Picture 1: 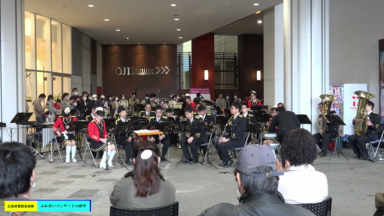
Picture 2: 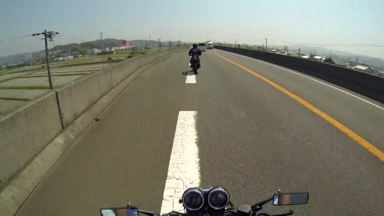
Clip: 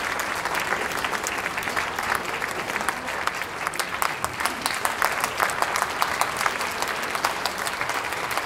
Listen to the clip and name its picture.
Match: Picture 1